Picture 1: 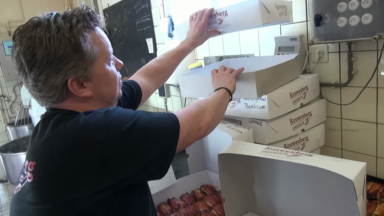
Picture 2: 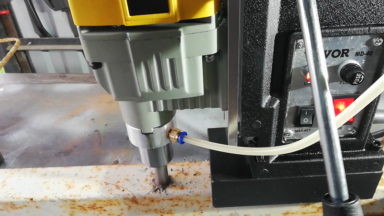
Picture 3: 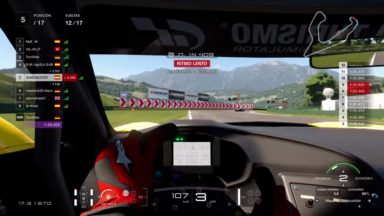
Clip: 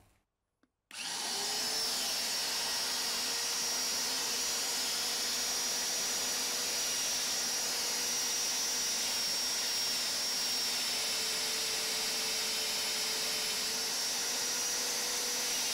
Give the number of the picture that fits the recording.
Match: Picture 2